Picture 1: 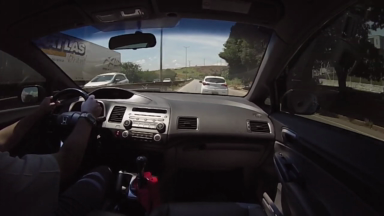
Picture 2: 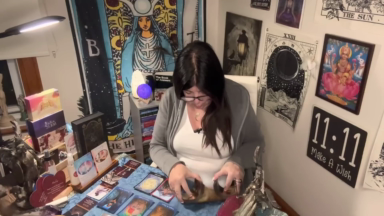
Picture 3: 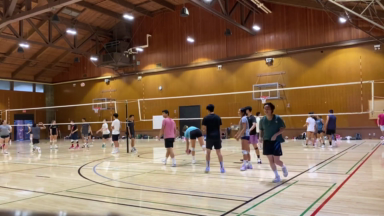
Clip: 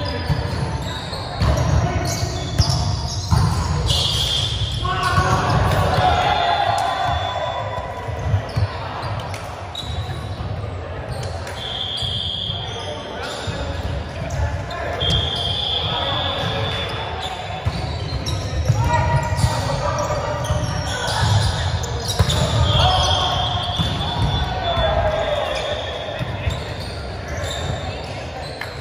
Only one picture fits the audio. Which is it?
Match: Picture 3